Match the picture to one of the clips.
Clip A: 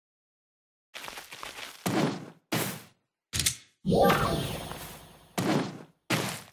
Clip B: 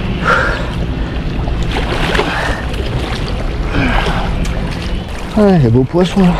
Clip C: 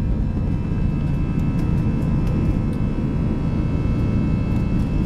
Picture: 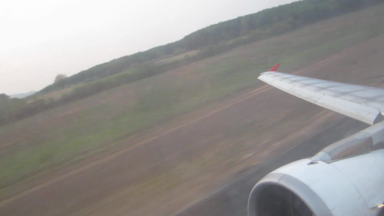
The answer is C